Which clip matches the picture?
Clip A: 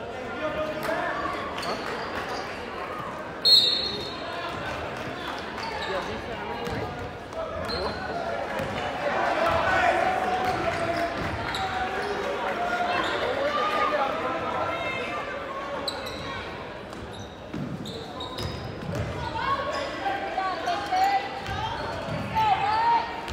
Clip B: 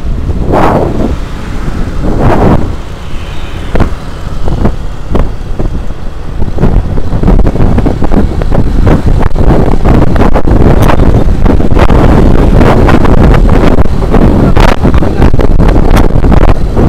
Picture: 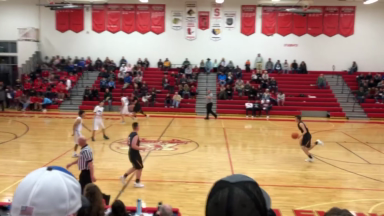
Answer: A